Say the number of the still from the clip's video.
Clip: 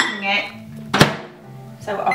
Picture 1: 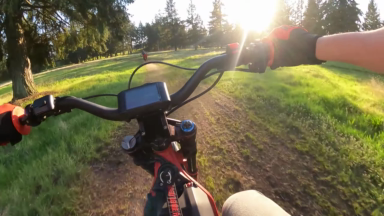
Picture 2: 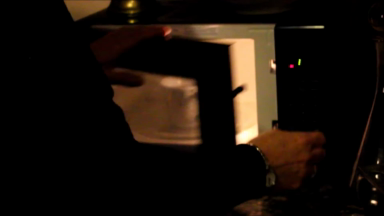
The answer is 2